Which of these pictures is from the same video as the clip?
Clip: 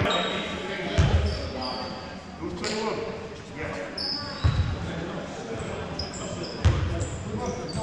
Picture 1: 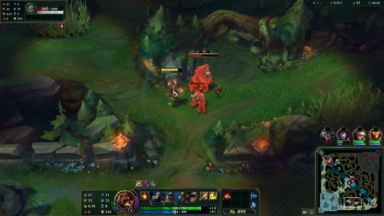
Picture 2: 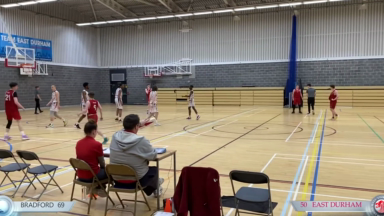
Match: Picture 2